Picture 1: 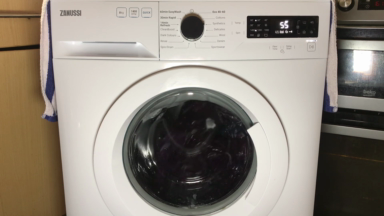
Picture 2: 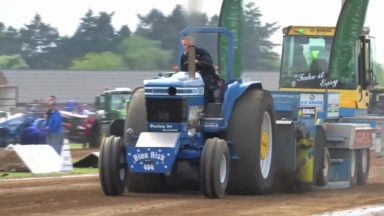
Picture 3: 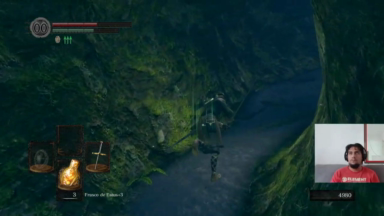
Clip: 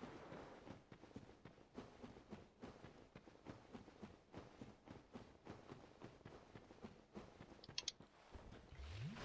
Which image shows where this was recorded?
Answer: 3